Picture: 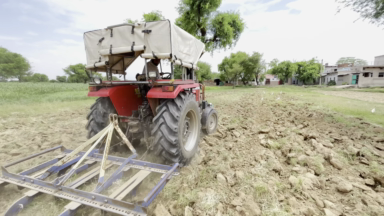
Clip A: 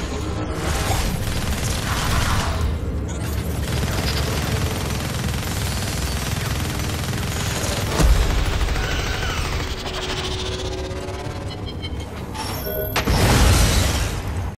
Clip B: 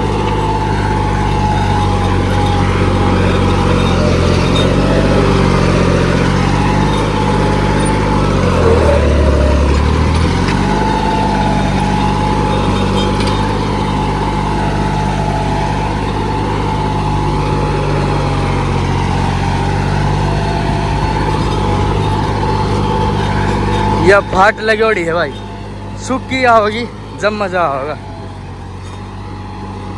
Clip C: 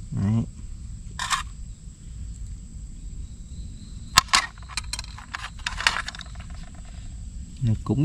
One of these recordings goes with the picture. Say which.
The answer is B